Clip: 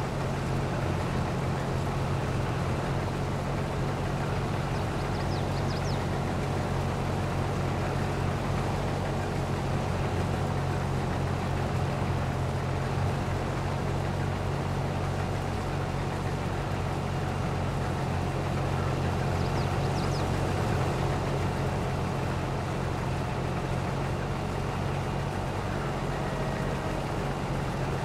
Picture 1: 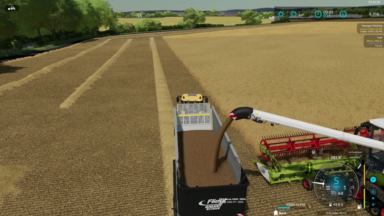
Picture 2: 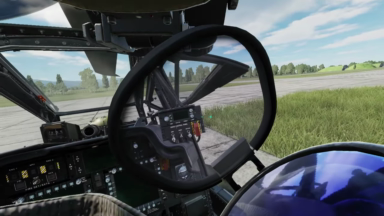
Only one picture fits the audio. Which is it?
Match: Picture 1